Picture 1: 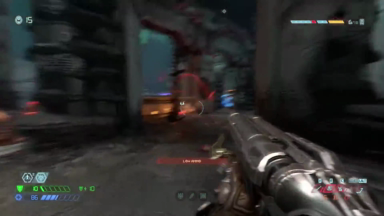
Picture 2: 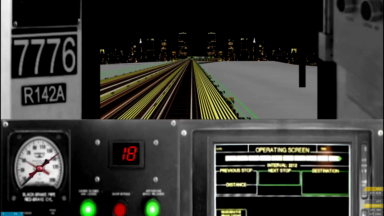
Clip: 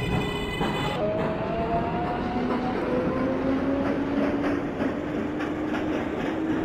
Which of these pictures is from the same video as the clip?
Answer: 2